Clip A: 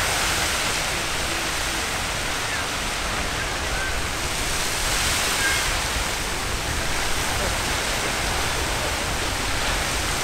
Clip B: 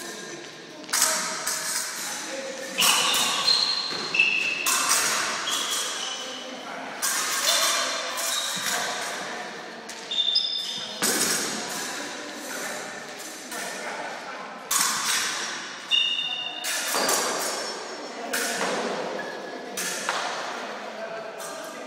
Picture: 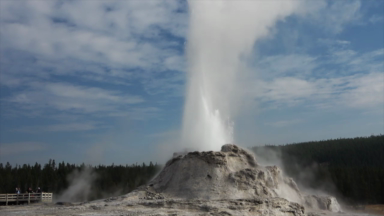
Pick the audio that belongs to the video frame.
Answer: A